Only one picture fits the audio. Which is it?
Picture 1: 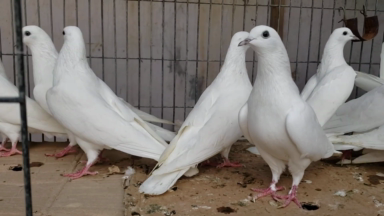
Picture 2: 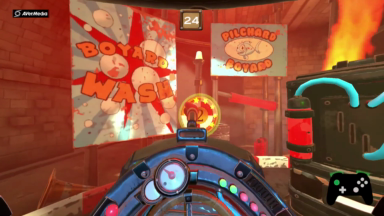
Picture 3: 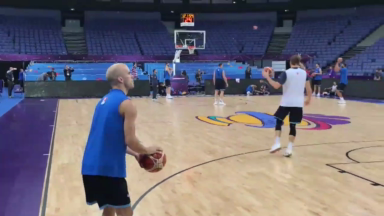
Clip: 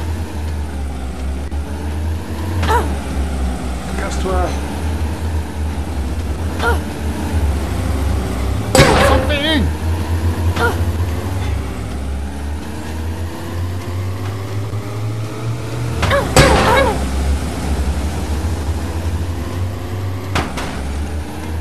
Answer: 2